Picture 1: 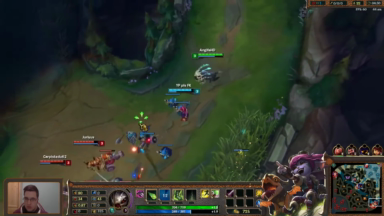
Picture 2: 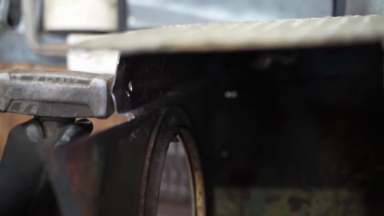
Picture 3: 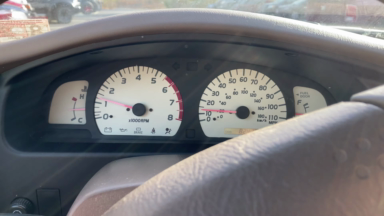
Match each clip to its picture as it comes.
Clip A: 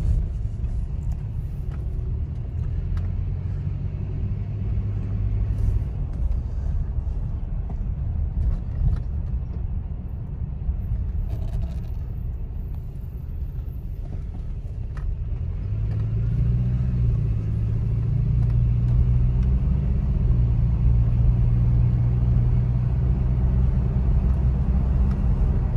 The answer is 3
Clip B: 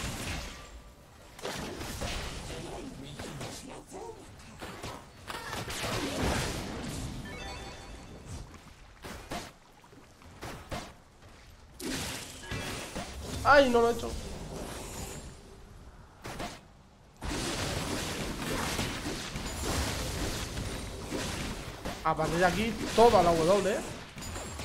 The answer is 1